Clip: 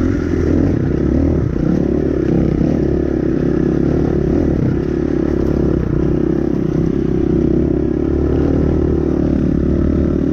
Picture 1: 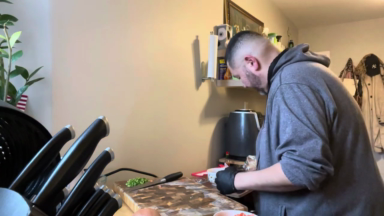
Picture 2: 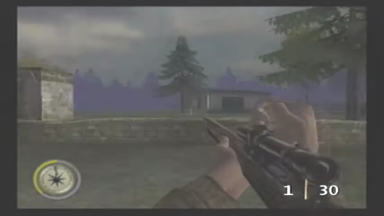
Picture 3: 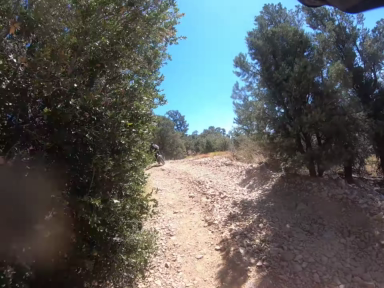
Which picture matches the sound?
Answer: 3